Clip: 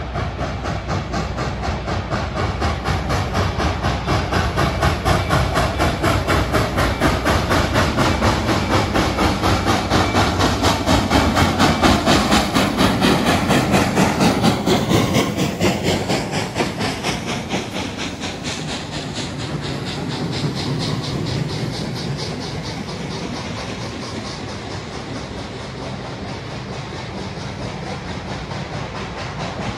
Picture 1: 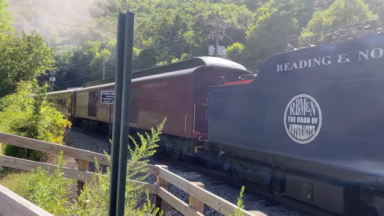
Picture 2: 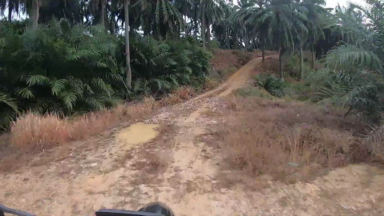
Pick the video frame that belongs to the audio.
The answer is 1